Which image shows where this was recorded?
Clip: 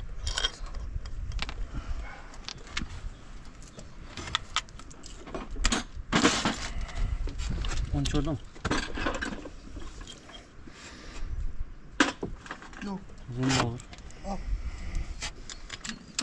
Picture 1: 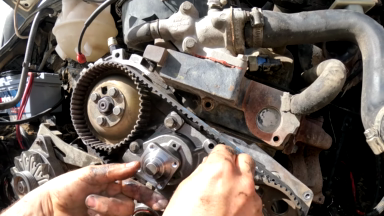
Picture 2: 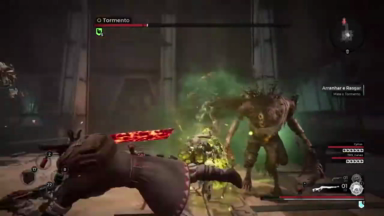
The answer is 1